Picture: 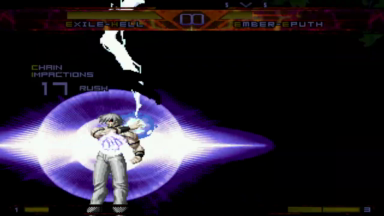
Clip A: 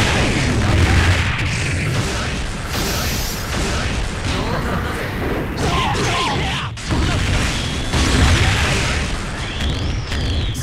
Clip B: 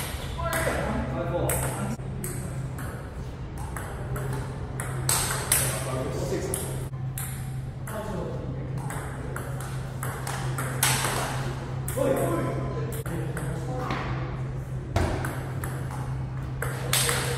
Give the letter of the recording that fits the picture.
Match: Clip A